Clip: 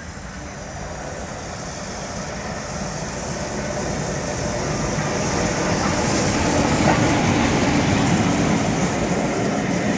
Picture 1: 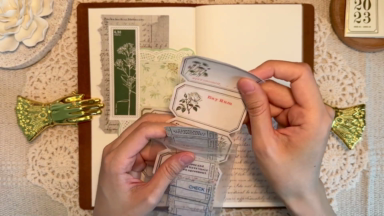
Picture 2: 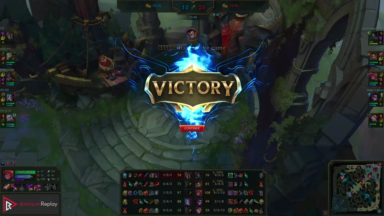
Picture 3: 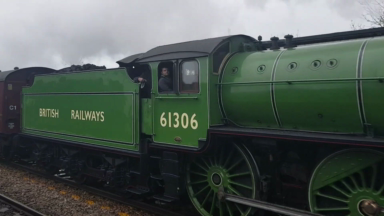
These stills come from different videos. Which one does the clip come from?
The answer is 3